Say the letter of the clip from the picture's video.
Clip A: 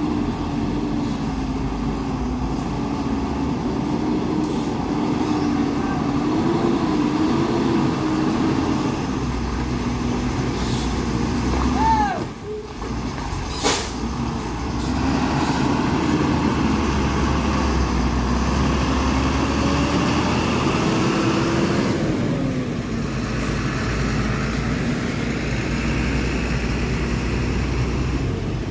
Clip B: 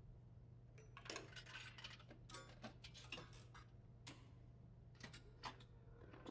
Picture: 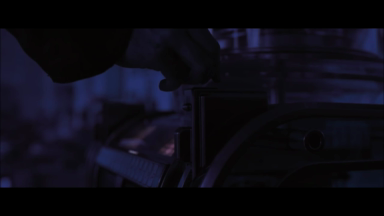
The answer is B